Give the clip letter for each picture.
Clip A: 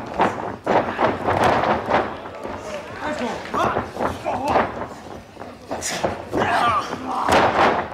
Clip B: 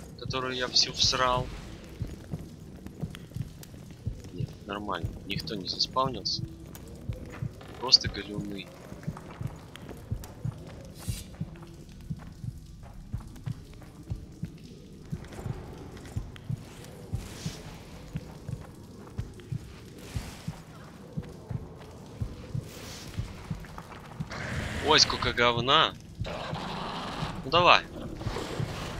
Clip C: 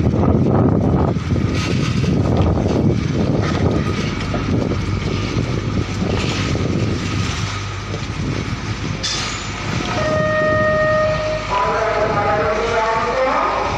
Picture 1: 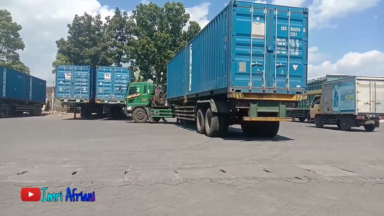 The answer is C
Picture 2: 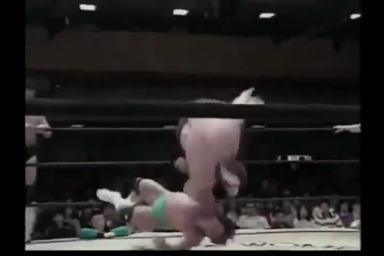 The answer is A